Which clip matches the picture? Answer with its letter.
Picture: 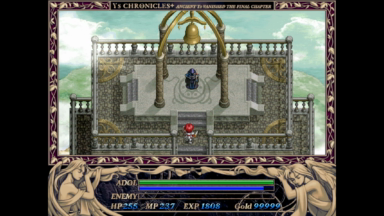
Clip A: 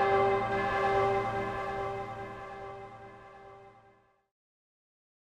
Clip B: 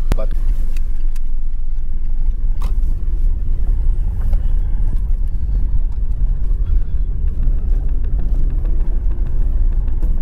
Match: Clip A